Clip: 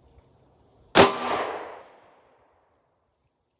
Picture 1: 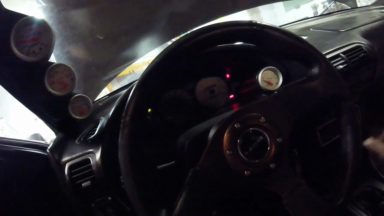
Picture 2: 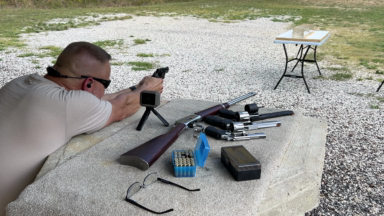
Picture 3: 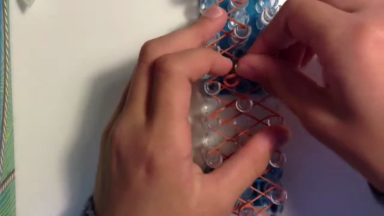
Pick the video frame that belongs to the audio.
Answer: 2